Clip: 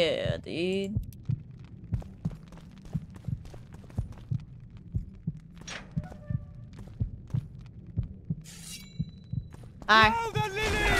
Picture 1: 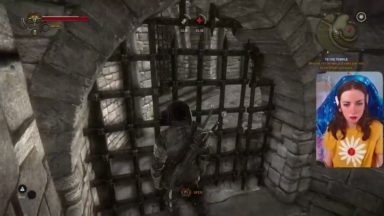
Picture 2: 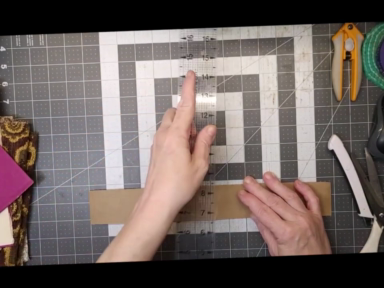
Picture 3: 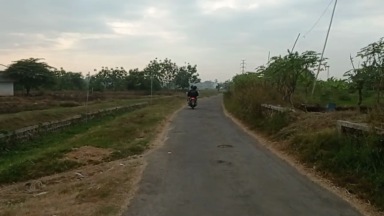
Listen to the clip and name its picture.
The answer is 1